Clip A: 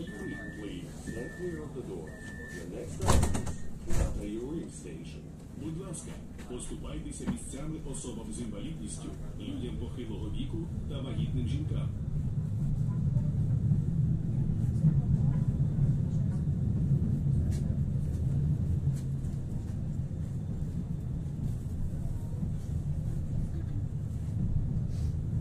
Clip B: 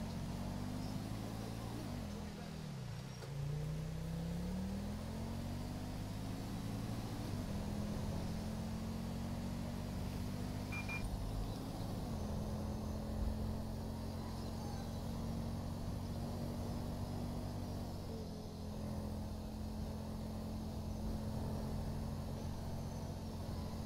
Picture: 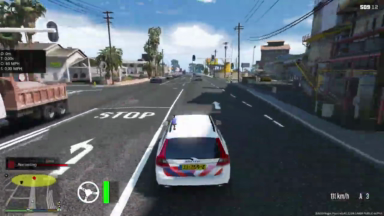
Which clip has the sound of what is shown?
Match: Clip B